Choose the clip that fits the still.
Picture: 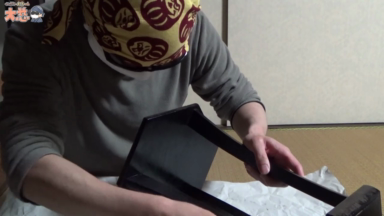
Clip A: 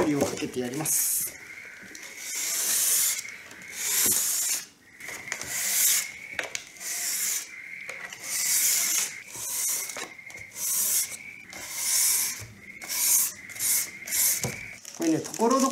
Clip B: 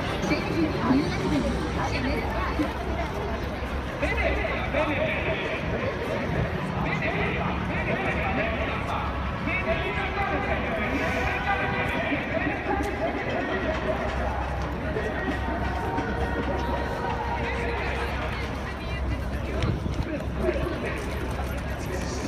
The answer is A